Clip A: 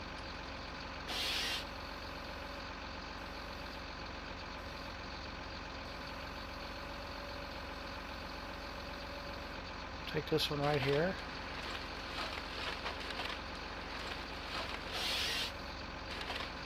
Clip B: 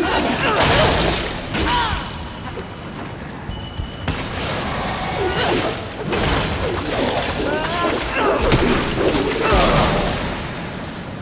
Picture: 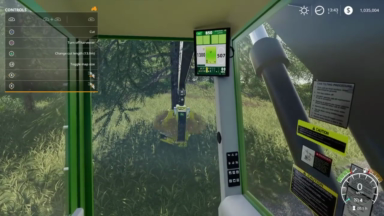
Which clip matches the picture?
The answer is A